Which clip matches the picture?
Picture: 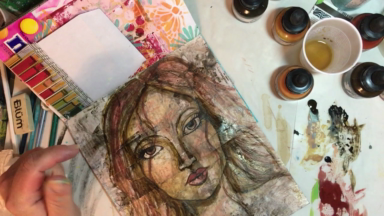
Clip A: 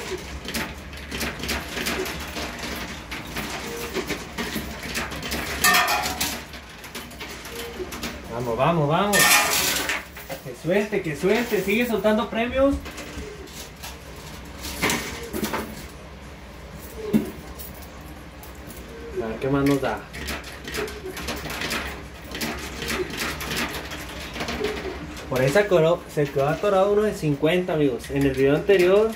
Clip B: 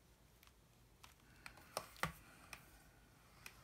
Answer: B